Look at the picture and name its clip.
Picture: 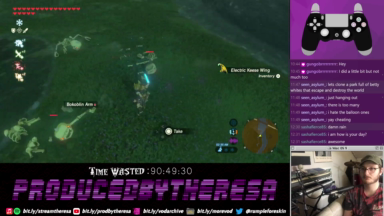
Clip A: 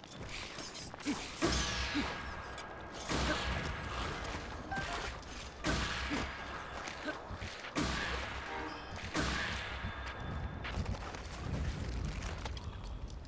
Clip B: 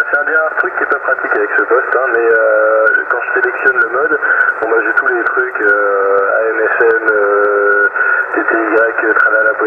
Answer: A